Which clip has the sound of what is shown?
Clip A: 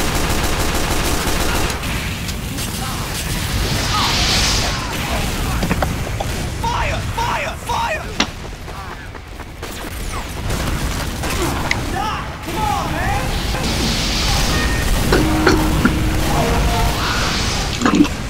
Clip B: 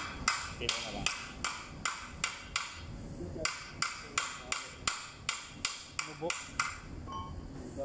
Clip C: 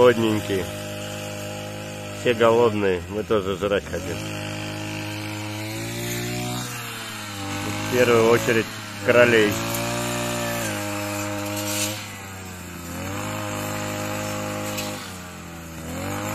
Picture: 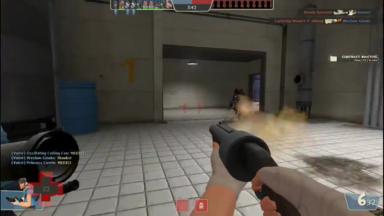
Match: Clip A